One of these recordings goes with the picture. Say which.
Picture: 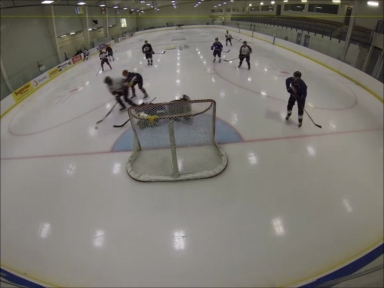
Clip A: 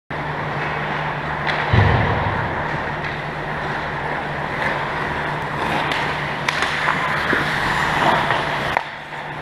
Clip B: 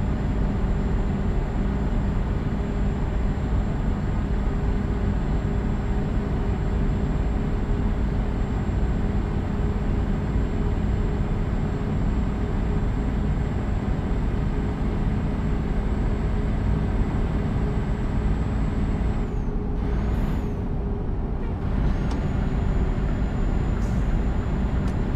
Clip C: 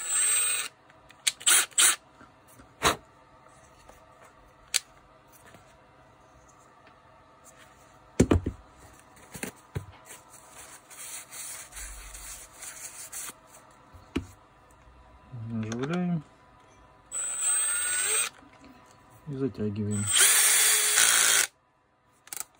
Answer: A